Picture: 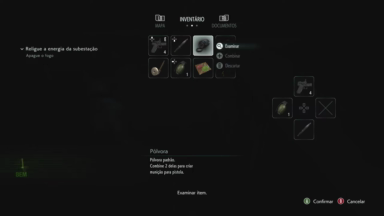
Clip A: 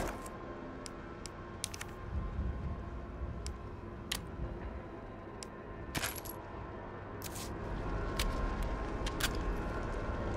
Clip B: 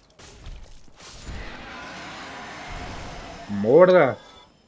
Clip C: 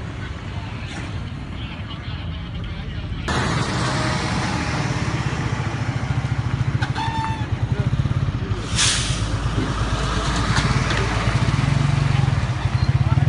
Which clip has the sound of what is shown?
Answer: A